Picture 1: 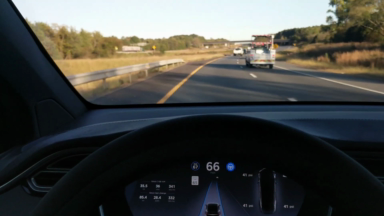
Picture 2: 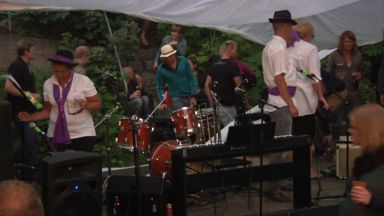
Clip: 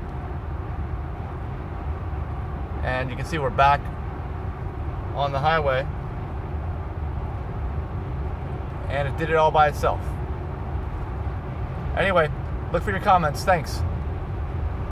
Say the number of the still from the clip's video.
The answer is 1